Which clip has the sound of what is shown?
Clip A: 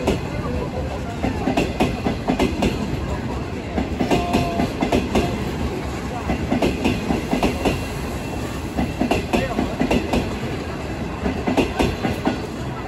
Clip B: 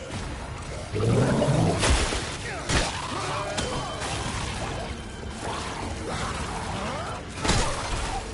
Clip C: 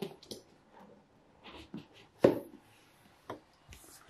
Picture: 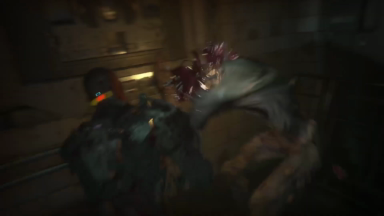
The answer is B